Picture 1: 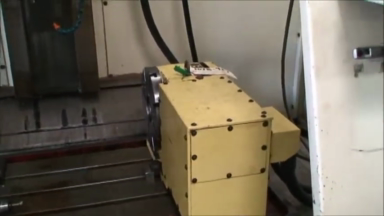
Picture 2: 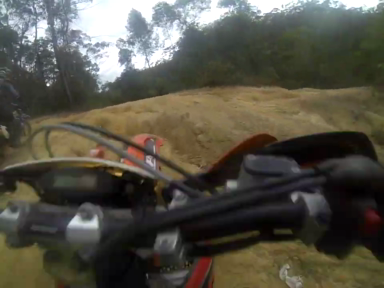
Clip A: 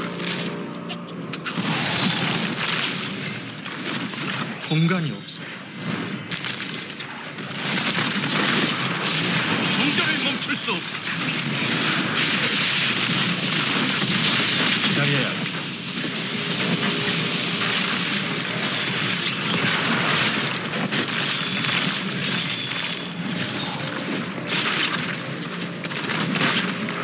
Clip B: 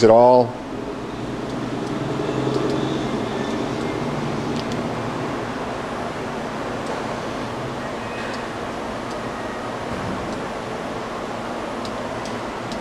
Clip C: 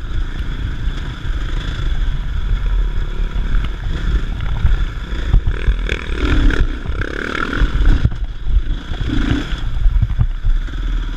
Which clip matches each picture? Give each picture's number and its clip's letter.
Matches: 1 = B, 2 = C